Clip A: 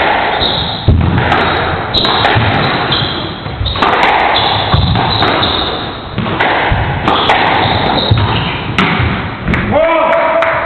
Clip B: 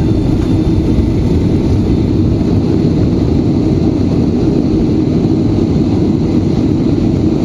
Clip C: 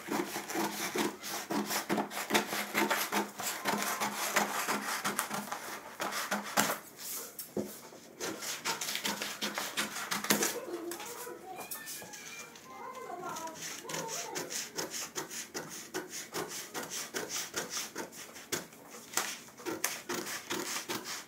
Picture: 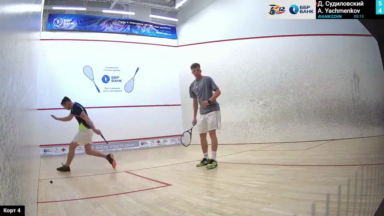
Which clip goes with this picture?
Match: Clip A